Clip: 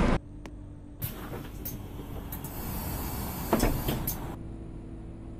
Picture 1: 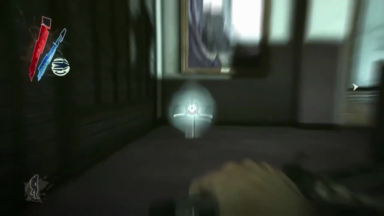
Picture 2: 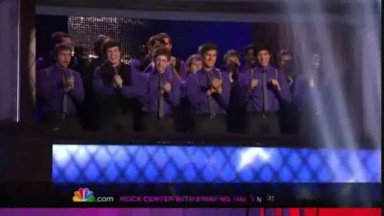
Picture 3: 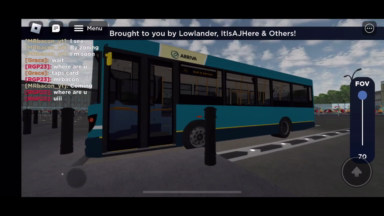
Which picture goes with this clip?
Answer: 3